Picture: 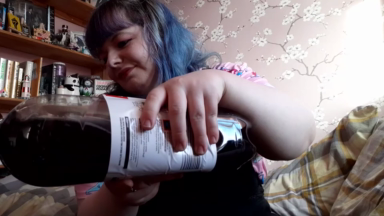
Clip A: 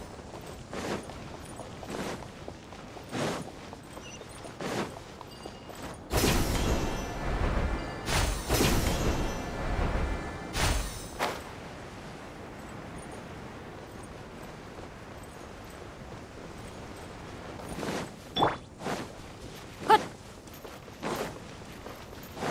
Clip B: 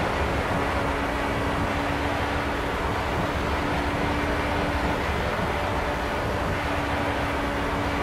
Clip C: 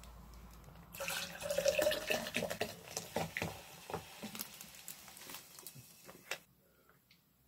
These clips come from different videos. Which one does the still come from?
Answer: C